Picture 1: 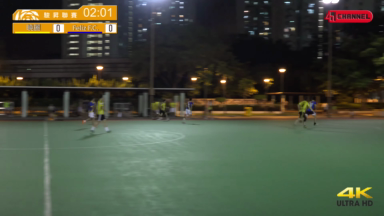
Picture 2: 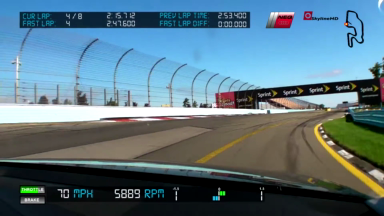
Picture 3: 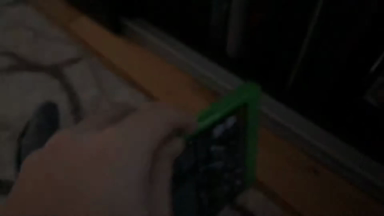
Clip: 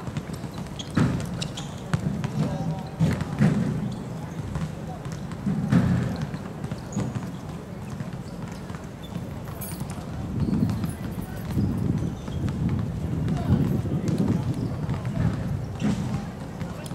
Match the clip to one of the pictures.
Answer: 1